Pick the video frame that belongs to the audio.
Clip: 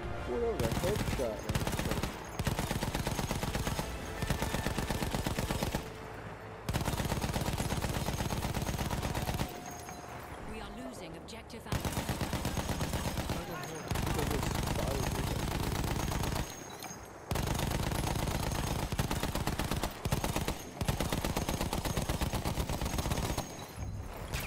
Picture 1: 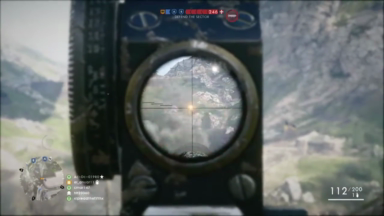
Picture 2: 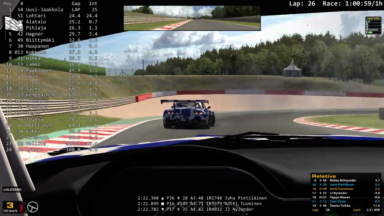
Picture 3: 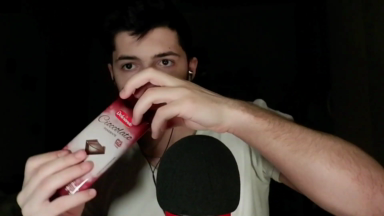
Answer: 1